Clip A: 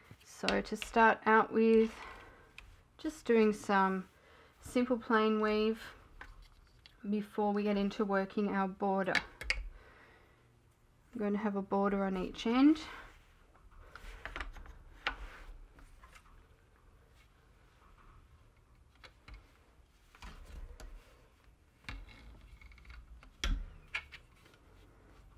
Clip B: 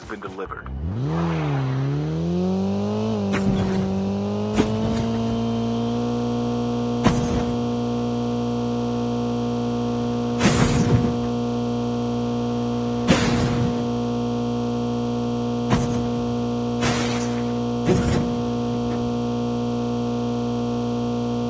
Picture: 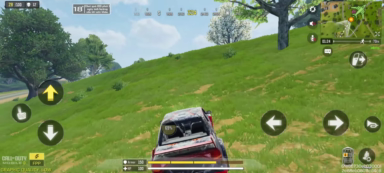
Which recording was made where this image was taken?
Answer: B